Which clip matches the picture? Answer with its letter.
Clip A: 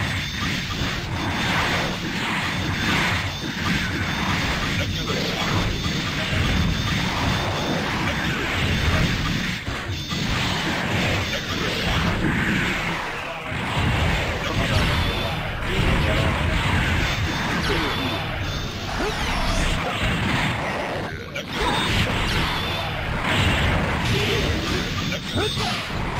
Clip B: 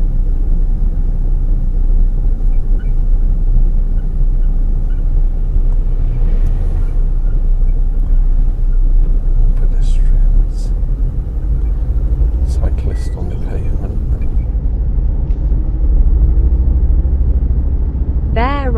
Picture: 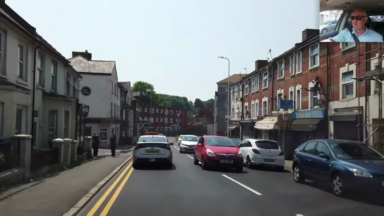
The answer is B